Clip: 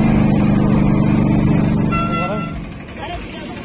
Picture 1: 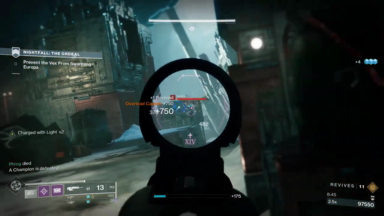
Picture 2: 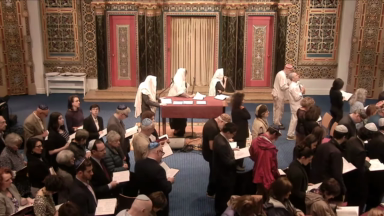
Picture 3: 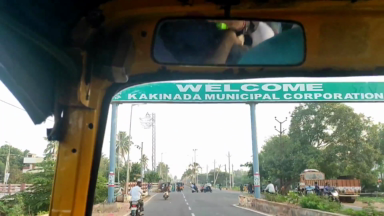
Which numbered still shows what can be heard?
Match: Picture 3